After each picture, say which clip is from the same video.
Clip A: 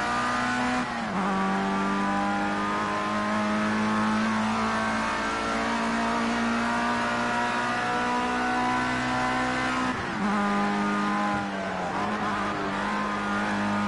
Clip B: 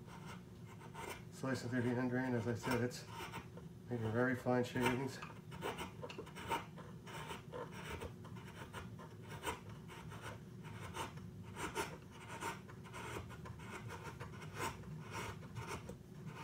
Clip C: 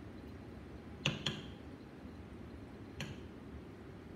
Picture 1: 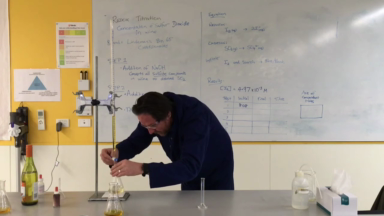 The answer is C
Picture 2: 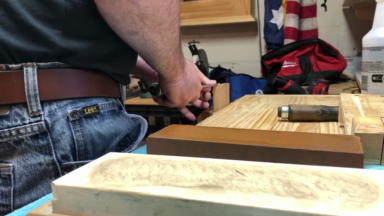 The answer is B